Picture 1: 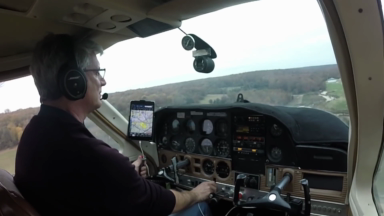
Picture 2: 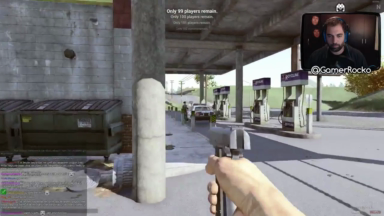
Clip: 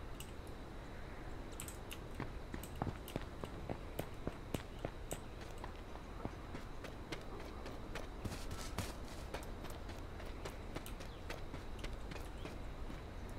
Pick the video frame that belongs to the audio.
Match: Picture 2